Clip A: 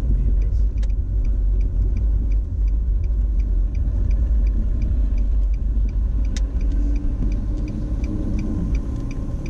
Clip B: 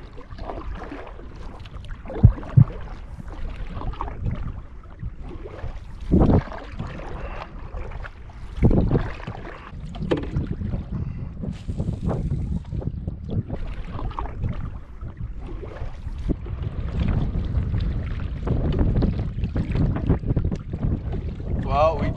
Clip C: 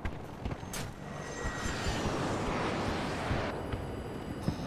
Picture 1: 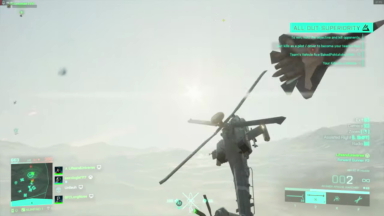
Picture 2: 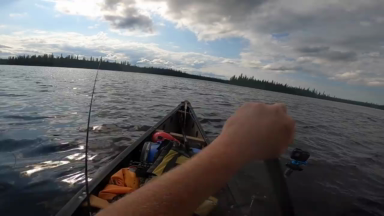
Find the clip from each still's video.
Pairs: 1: C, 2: B